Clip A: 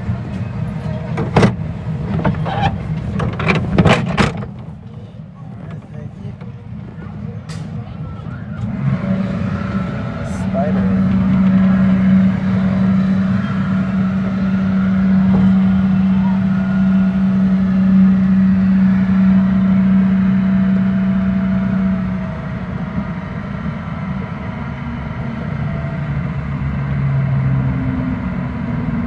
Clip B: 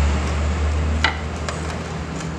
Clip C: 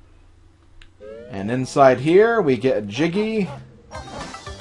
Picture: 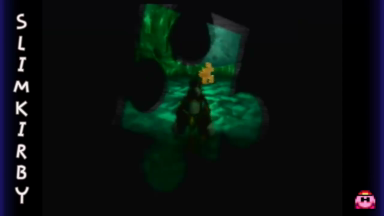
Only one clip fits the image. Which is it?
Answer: C